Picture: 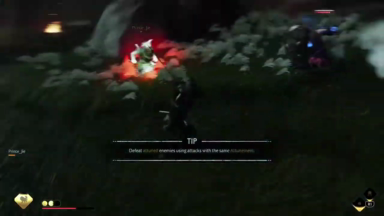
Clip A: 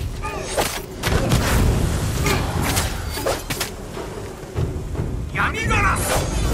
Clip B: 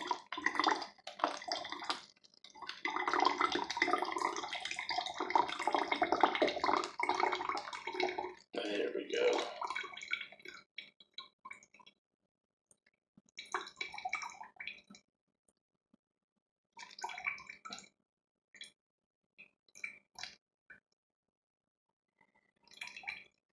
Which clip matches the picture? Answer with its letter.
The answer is A